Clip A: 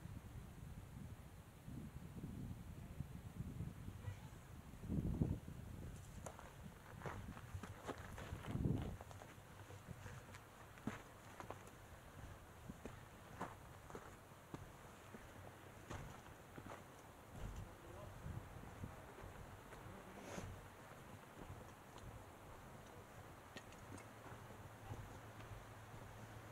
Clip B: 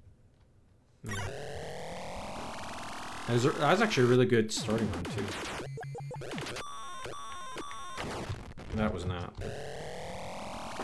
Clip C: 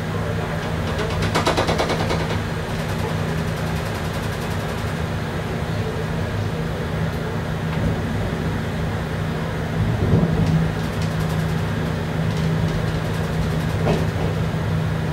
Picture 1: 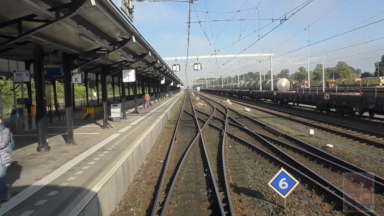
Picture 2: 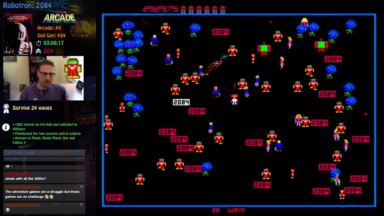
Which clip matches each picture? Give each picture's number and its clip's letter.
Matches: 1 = C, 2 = B